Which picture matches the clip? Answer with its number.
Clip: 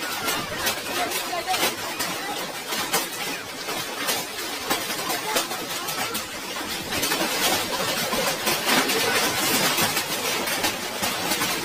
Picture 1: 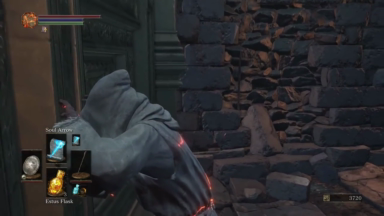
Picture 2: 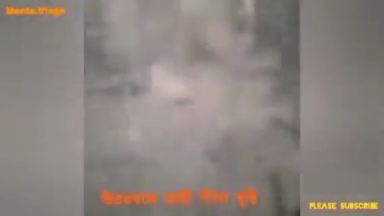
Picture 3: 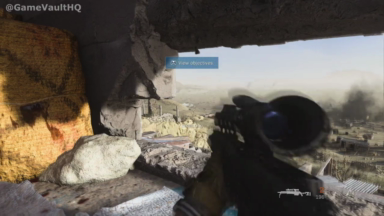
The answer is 2